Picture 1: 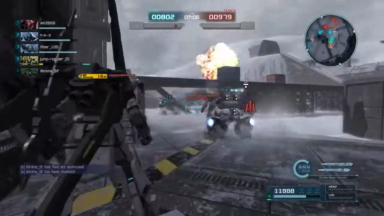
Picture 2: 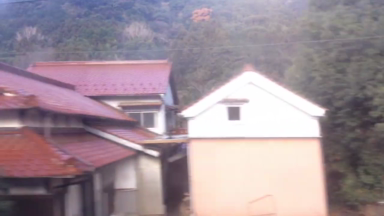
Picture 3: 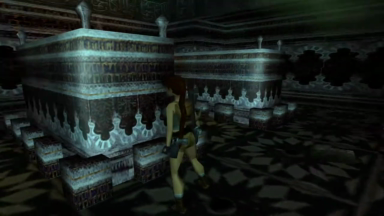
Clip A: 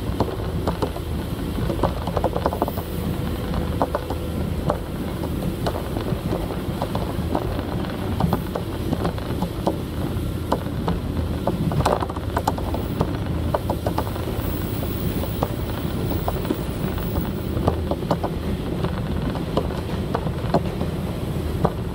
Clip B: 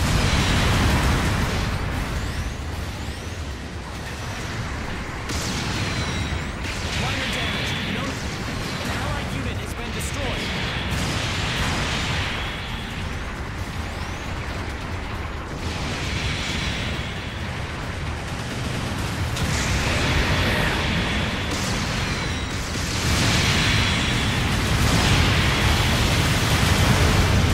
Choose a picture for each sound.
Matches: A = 2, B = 1